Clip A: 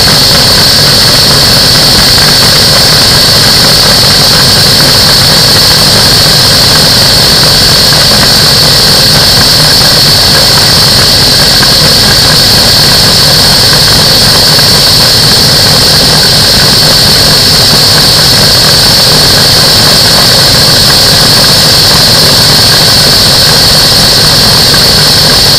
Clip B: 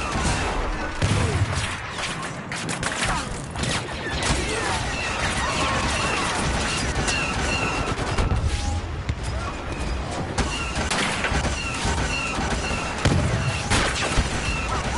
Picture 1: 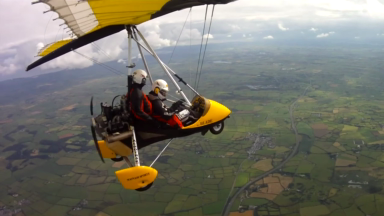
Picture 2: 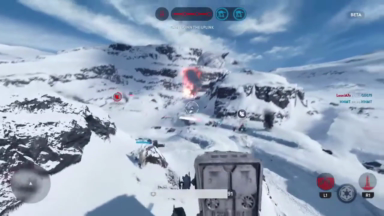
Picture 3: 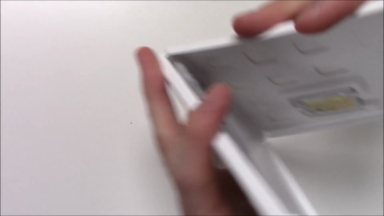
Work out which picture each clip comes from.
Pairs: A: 1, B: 2